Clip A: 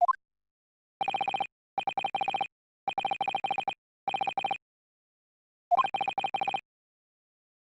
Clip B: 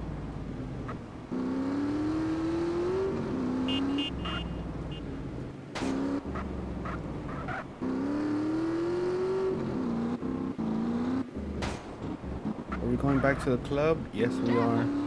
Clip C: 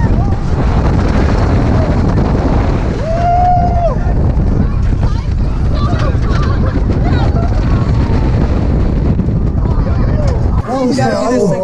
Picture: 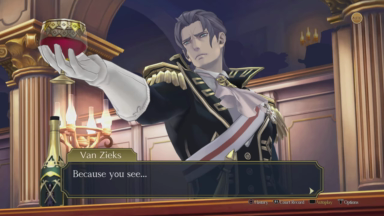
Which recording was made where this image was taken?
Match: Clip A